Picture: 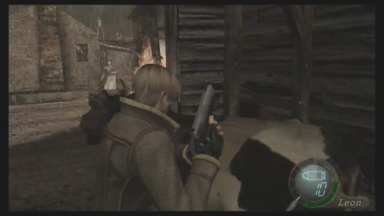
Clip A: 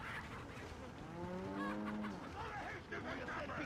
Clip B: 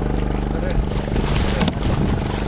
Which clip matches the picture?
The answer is A